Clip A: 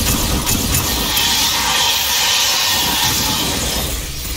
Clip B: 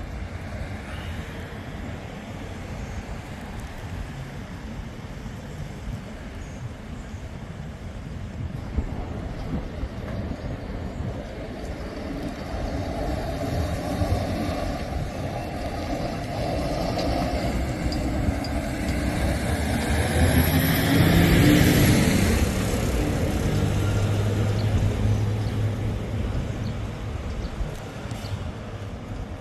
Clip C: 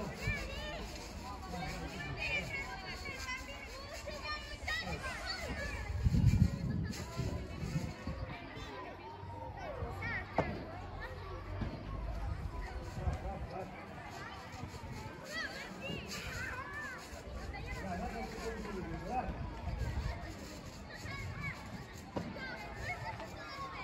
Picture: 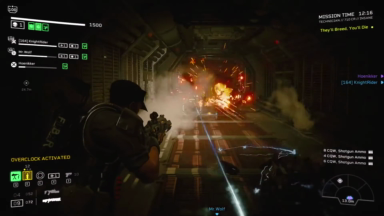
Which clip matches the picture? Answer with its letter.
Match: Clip A